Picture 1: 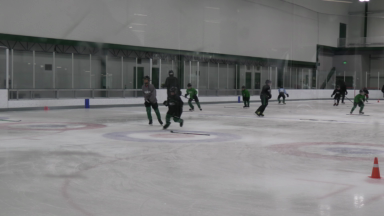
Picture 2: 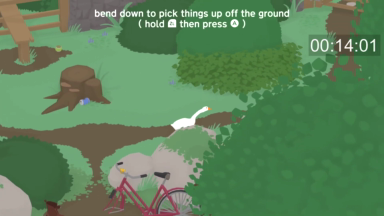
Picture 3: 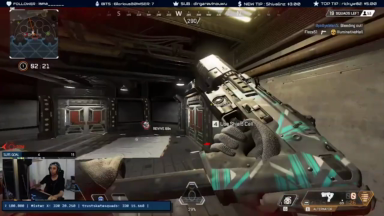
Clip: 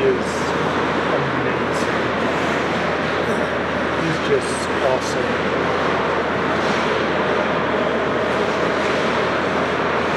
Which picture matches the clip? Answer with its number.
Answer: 1